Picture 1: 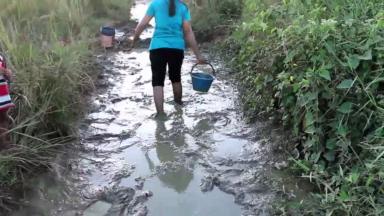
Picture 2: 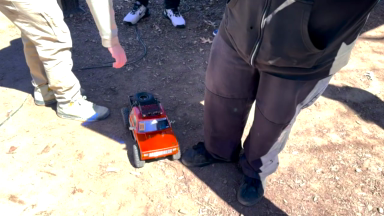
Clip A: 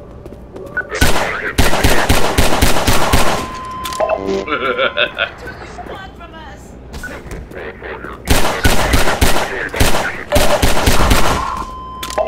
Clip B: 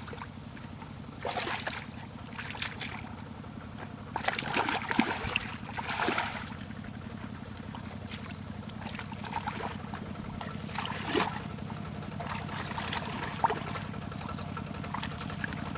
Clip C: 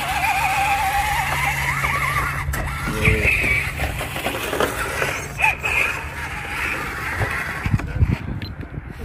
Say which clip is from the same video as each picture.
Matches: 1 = B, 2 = C